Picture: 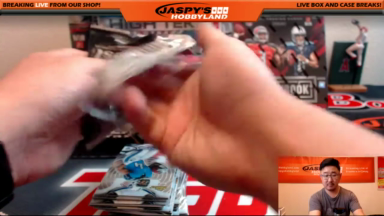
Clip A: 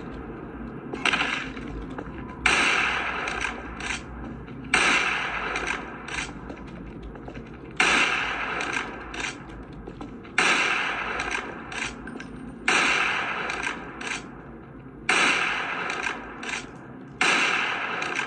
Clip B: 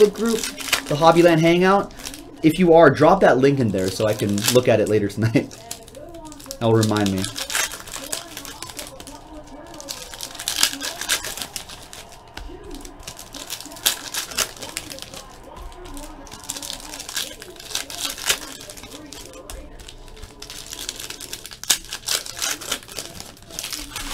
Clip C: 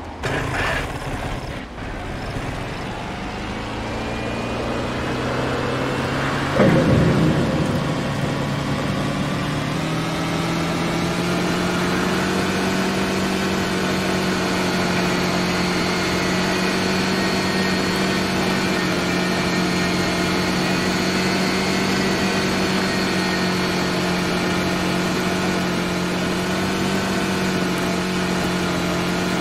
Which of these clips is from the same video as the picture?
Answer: B